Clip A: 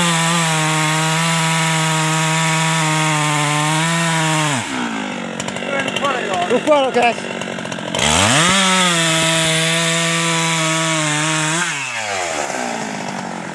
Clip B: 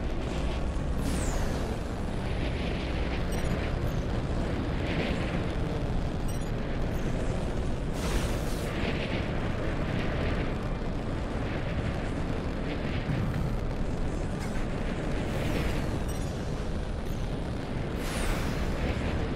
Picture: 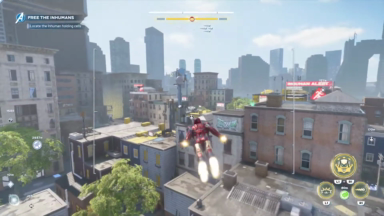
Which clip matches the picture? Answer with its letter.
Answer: B